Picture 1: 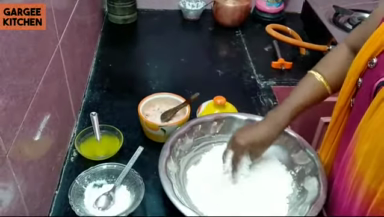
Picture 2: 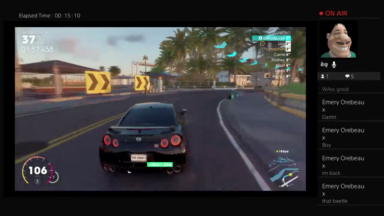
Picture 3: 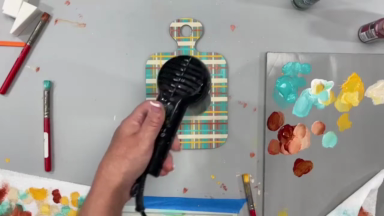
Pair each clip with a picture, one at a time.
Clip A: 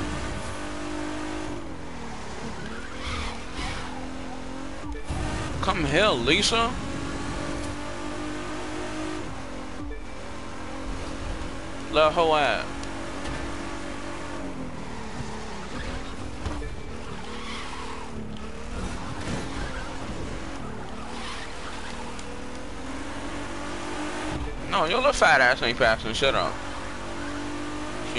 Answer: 2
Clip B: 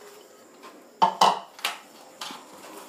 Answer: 1